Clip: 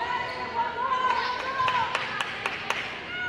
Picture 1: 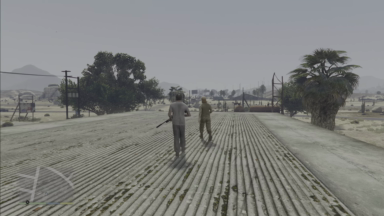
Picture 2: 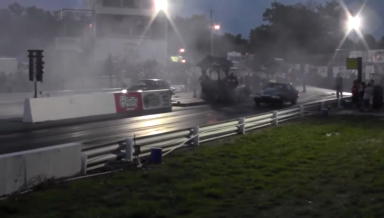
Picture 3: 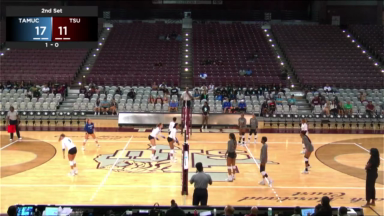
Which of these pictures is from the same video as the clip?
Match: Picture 3